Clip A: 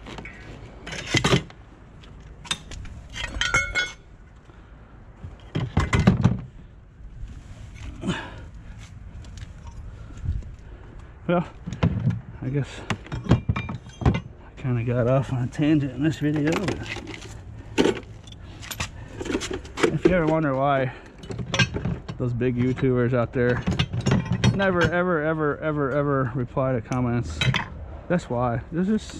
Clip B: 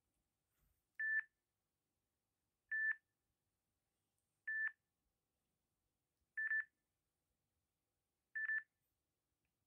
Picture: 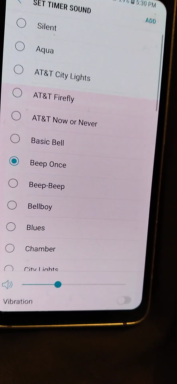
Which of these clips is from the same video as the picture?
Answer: B